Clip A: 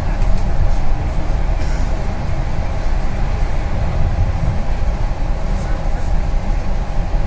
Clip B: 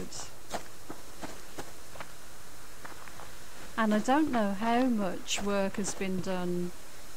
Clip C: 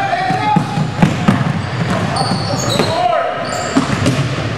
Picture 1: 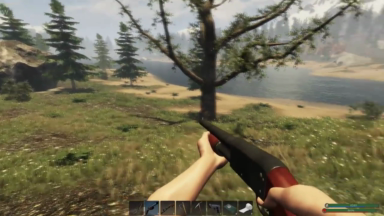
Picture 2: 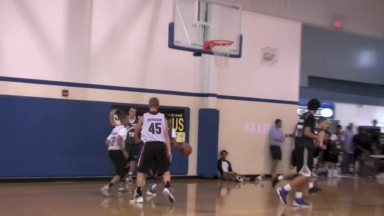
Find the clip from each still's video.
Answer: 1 B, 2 C